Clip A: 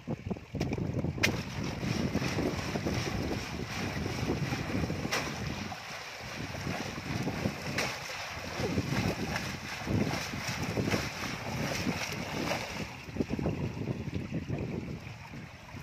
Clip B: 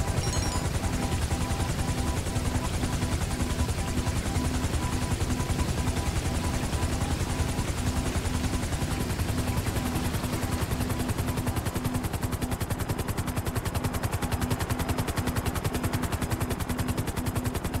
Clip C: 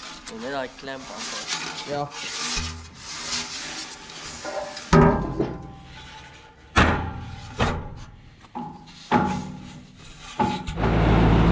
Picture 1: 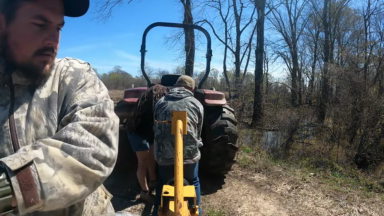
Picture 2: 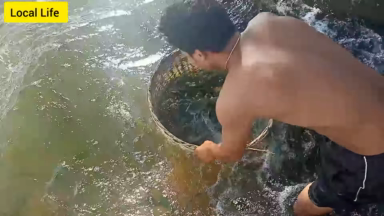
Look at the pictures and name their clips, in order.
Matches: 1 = C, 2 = A